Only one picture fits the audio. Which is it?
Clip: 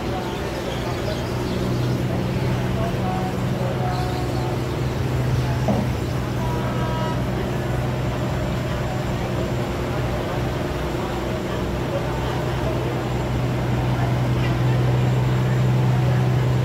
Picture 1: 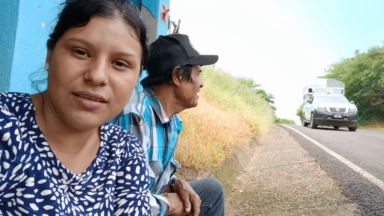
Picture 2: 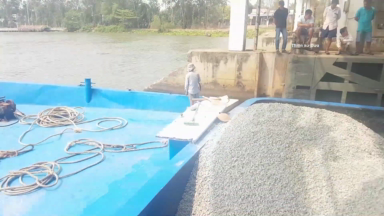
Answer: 2